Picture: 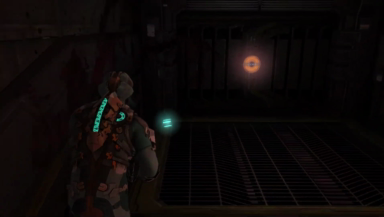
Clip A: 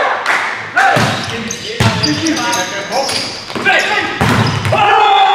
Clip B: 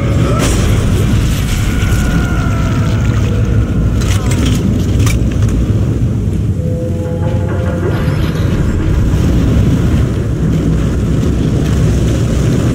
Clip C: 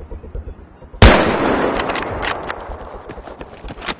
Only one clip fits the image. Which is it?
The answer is B